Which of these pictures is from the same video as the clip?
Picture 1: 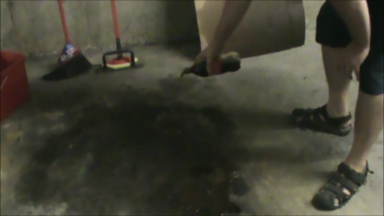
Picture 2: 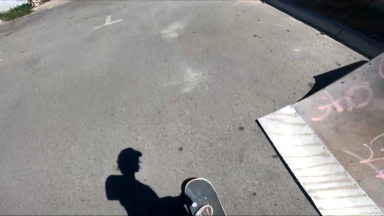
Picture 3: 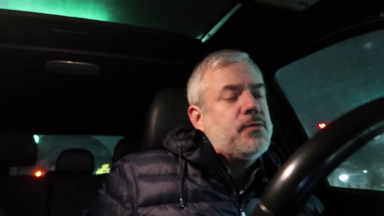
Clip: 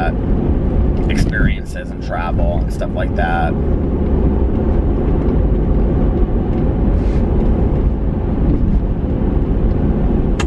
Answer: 3